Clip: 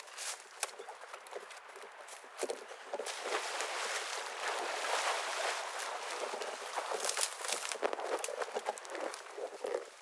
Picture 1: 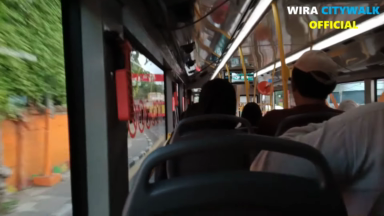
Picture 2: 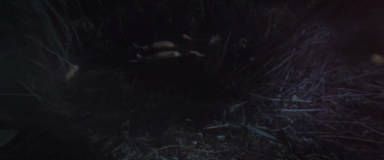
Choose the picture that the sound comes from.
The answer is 2